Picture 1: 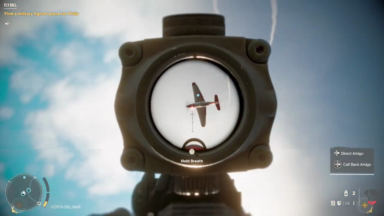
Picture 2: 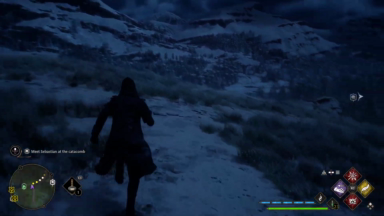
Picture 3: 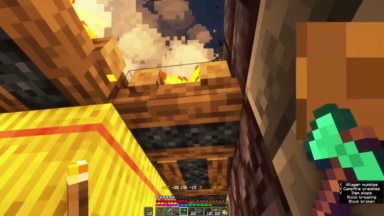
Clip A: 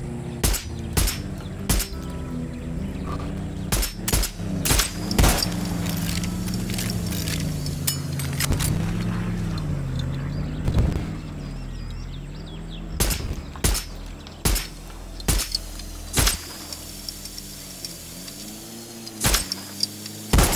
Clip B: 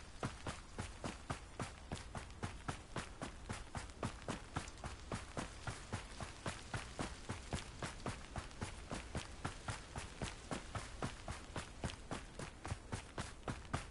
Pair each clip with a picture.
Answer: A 1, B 2